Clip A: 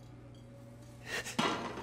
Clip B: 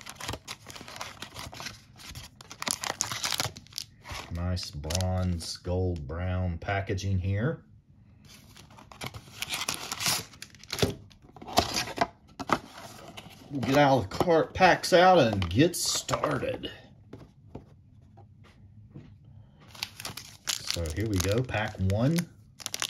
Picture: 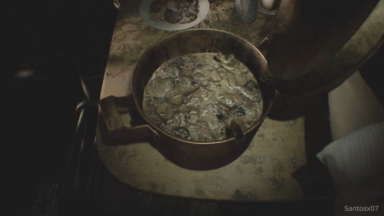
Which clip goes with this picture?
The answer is A